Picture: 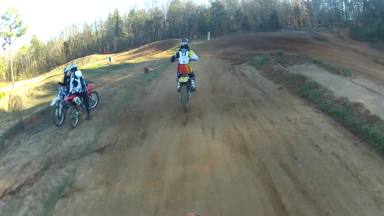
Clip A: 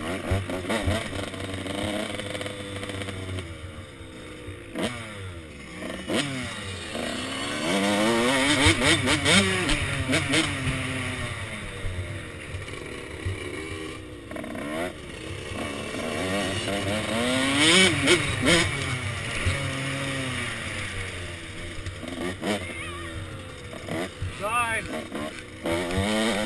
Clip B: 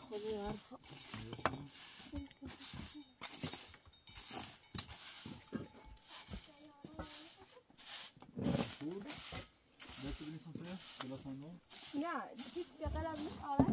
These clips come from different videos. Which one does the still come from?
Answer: A